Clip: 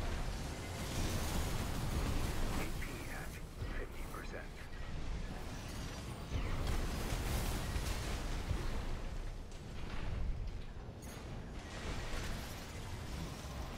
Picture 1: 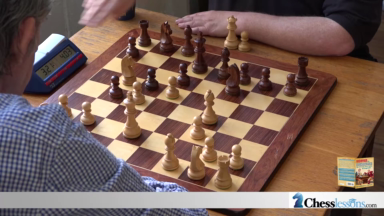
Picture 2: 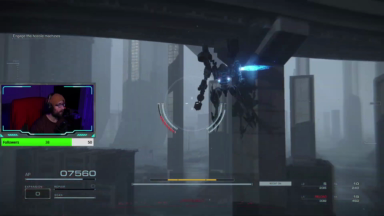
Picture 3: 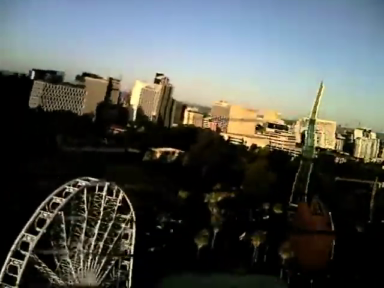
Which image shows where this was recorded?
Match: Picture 2